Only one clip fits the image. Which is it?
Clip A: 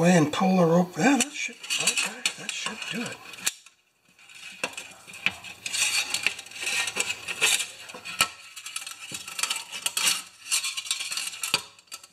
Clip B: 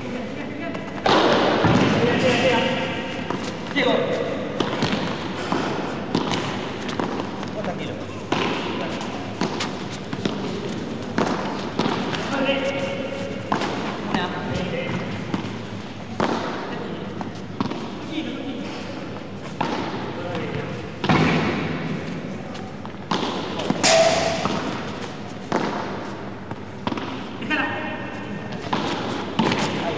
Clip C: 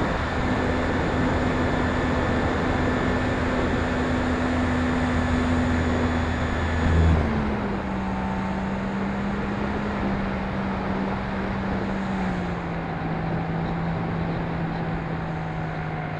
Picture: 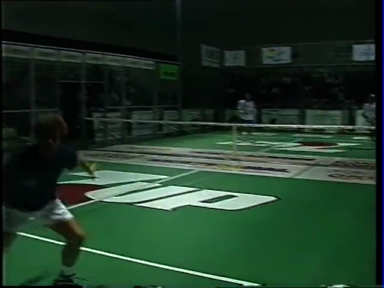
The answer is B